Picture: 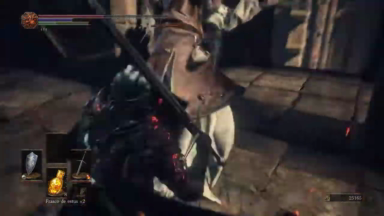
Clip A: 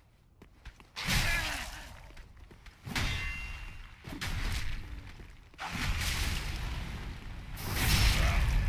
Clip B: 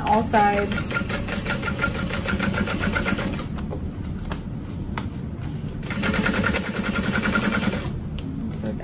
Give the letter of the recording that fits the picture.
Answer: A